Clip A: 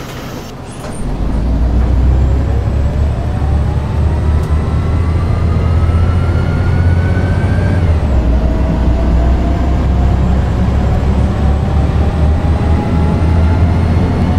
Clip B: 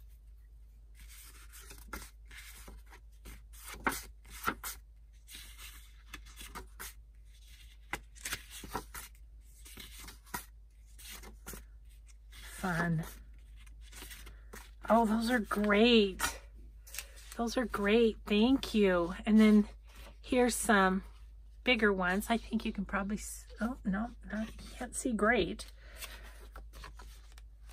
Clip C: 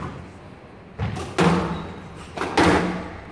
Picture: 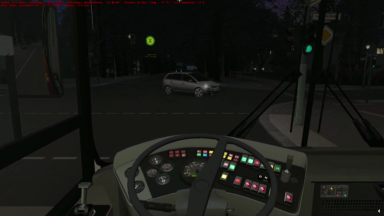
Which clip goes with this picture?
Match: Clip A